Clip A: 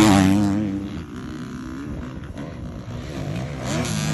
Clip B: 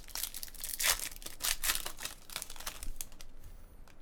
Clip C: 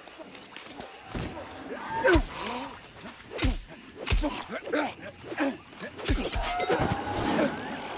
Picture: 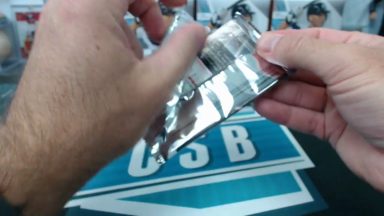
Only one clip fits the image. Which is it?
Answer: B